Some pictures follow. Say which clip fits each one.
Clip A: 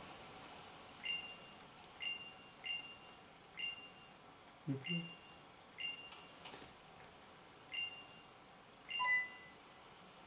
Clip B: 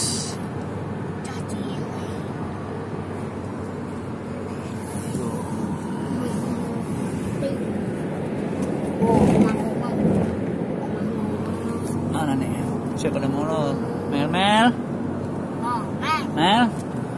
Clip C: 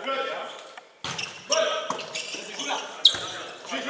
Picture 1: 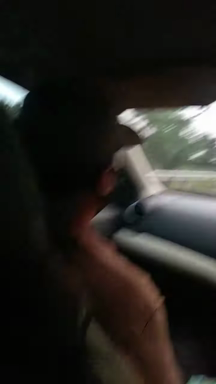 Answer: B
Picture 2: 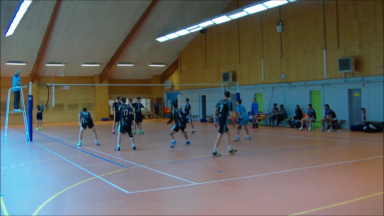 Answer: C